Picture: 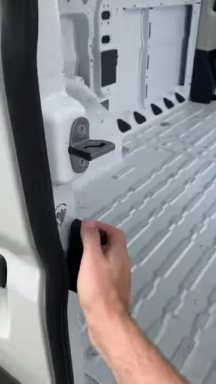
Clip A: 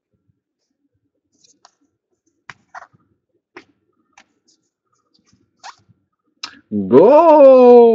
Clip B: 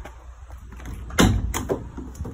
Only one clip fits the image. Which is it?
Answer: B